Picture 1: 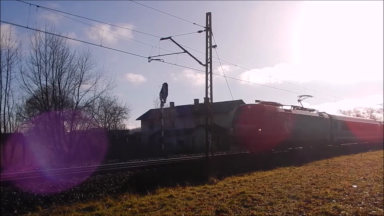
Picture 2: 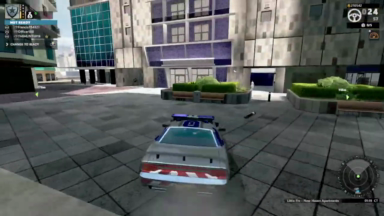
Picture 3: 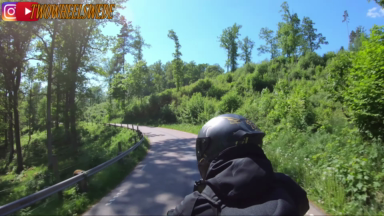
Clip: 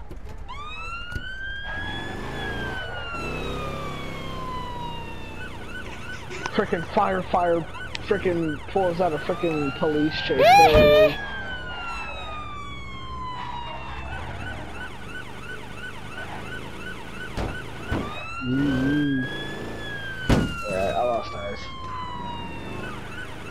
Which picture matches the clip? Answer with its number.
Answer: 2